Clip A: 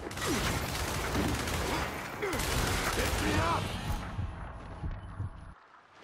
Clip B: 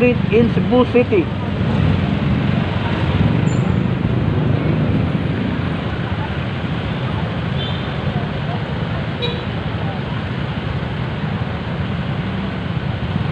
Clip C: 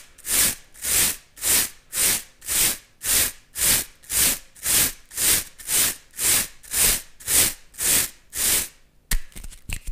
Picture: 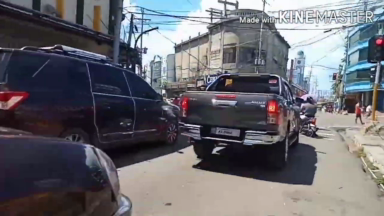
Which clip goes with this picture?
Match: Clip B